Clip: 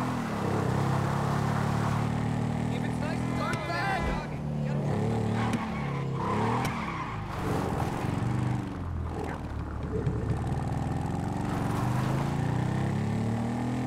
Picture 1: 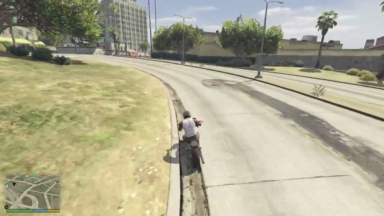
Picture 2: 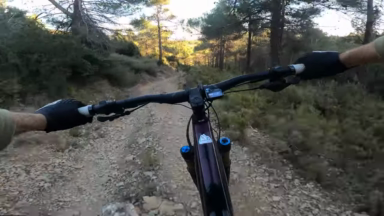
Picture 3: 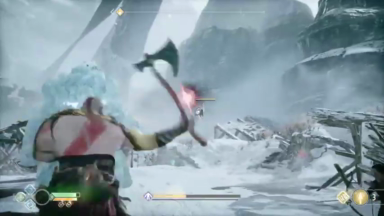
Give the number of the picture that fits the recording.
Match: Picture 1